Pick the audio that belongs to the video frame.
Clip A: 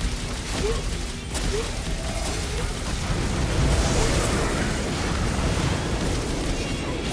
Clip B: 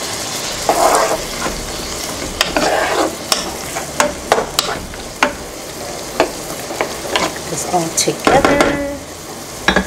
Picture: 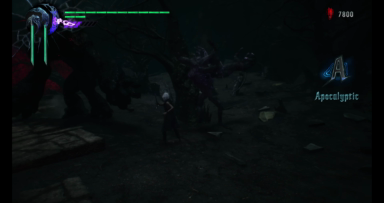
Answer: A